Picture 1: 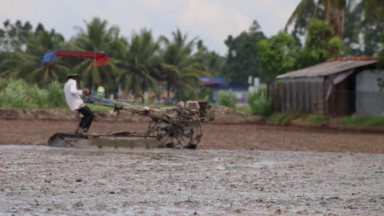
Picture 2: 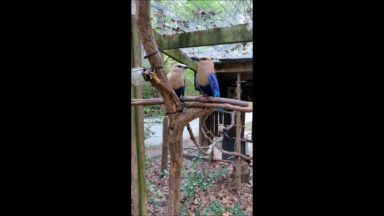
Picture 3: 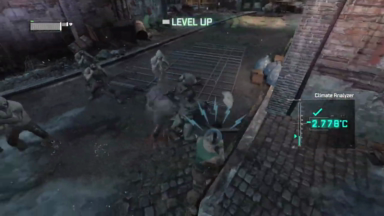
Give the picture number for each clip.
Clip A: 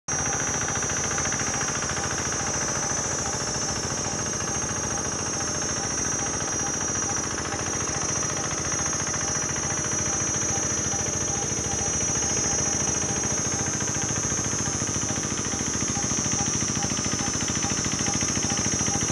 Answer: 1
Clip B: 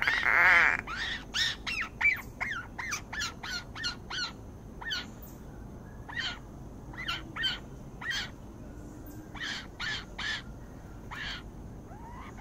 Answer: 2